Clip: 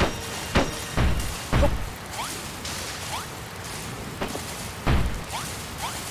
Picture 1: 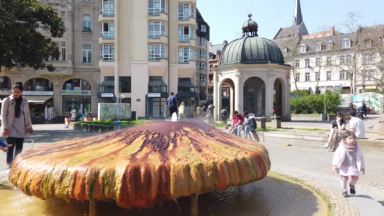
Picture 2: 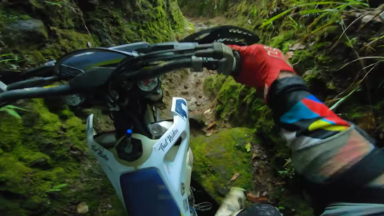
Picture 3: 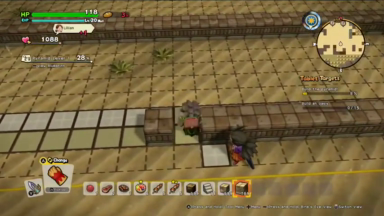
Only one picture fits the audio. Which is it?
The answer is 3